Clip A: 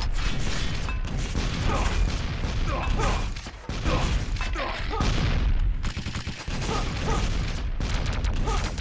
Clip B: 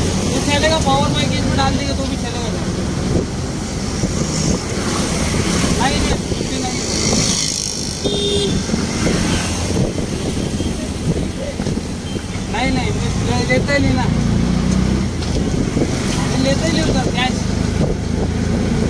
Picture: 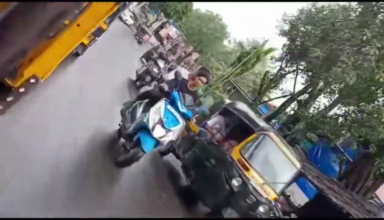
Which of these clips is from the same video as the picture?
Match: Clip B